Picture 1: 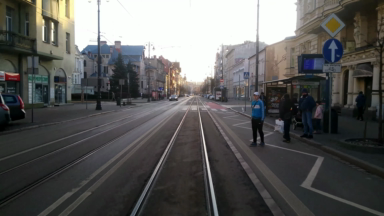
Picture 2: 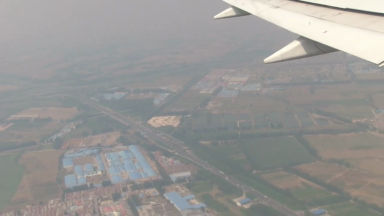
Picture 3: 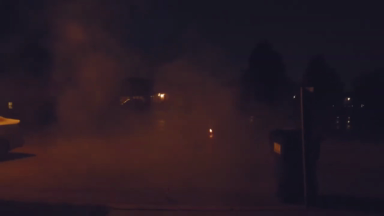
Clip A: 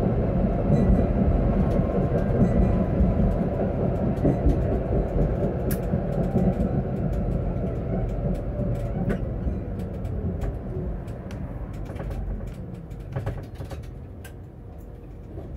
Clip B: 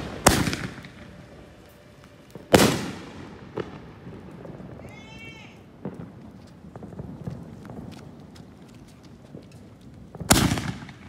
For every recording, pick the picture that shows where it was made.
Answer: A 1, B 3